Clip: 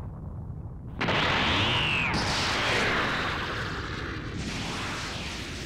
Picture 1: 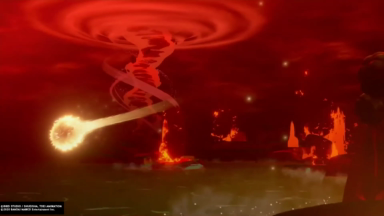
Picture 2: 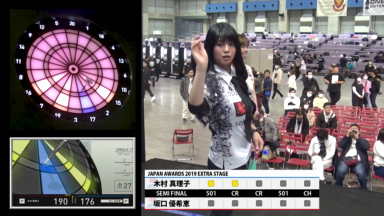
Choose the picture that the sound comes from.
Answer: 1